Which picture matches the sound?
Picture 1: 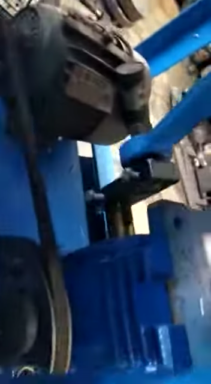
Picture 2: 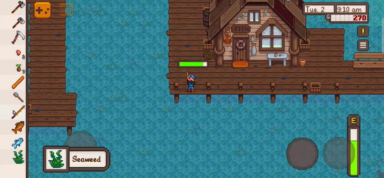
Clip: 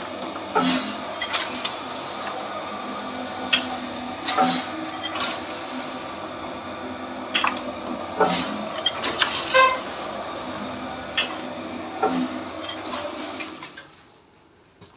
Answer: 1